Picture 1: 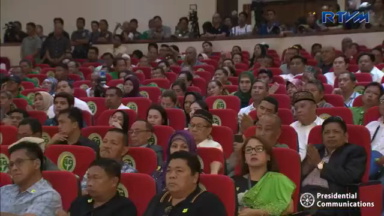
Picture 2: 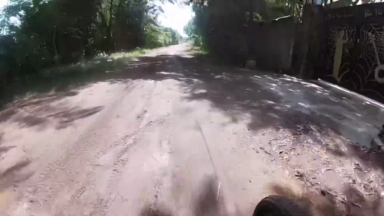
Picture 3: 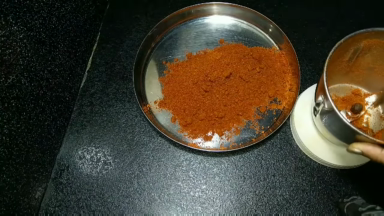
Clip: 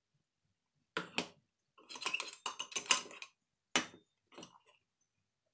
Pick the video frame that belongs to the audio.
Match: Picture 3